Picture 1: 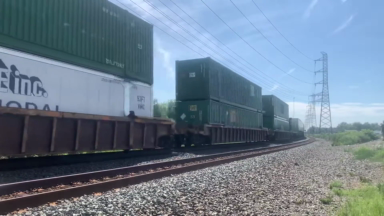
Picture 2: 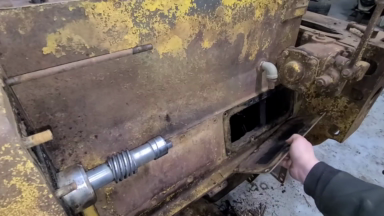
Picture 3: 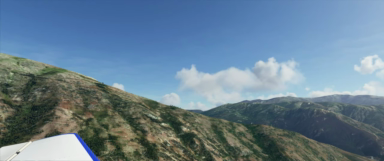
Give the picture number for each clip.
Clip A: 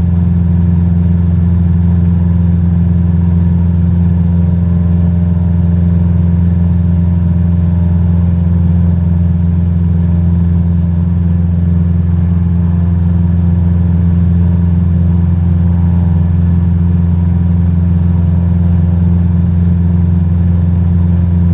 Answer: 3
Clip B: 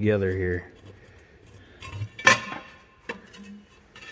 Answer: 2